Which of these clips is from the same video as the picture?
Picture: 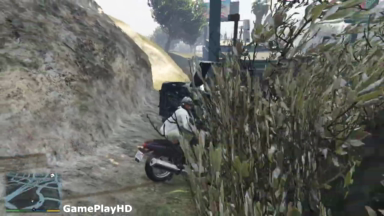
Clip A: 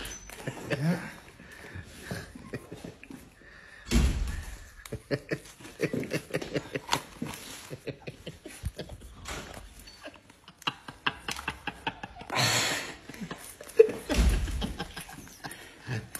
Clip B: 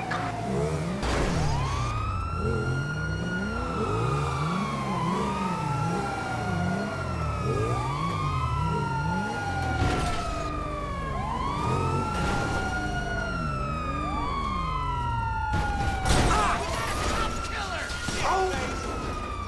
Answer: B